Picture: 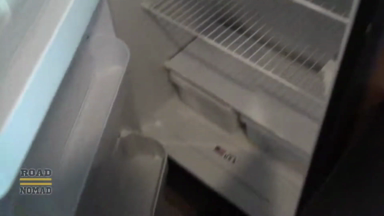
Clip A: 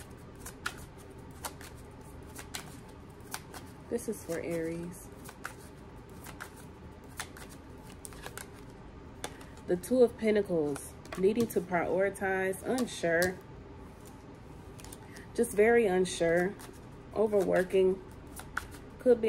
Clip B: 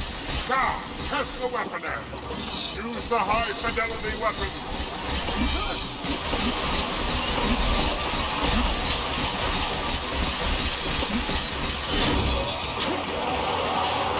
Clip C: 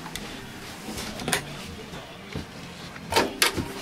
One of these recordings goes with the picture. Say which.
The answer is C